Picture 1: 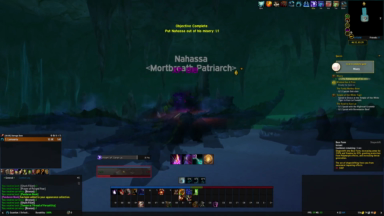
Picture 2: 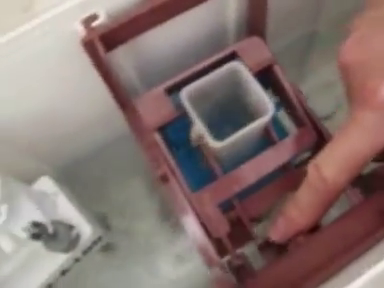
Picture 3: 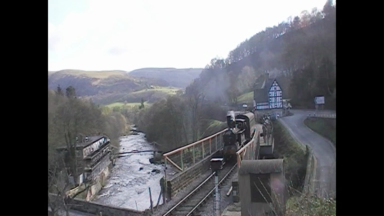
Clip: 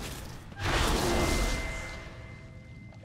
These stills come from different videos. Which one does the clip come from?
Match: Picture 1